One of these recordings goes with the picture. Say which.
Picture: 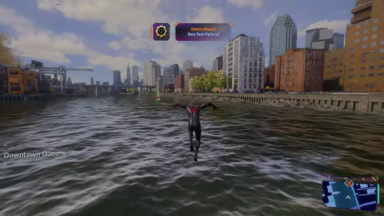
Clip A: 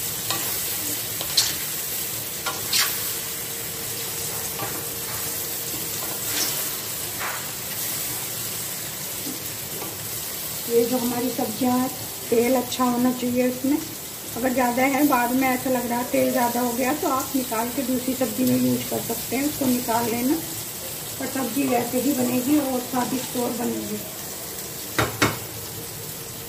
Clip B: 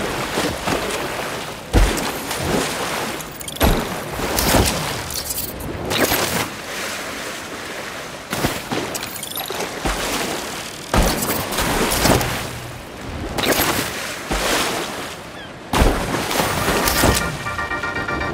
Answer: B